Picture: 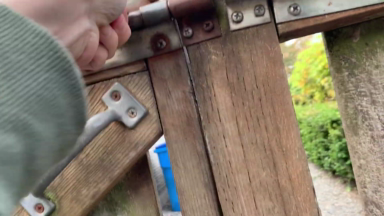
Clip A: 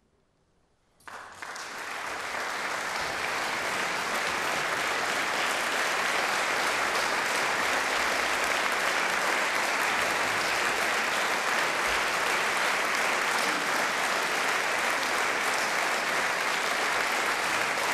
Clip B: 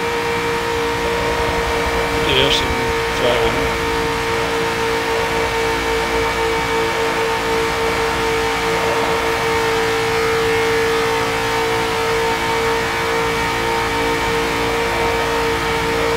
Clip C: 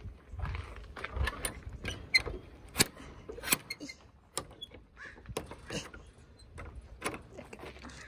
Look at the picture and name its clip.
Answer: C